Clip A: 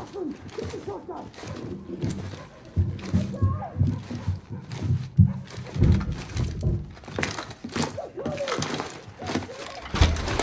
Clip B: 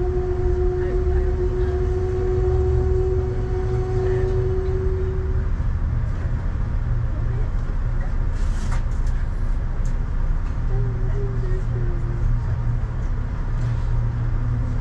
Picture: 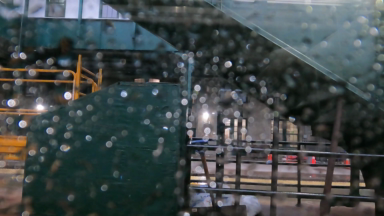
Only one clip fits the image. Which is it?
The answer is B